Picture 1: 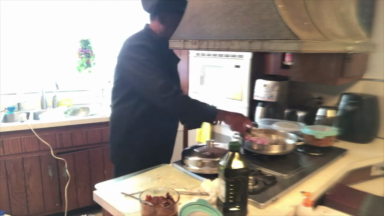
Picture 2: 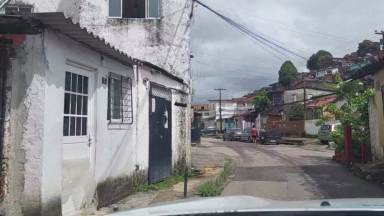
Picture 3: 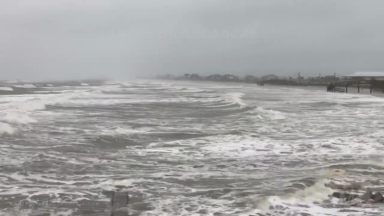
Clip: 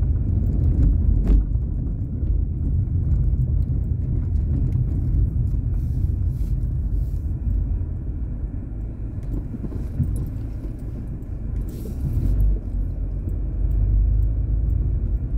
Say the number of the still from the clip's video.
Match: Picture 2